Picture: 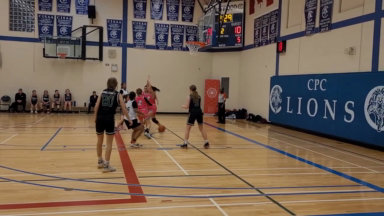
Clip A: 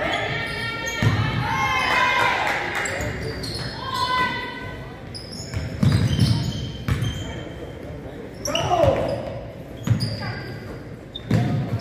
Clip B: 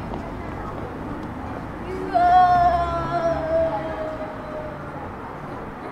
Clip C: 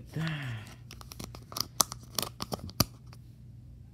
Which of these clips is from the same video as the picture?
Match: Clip A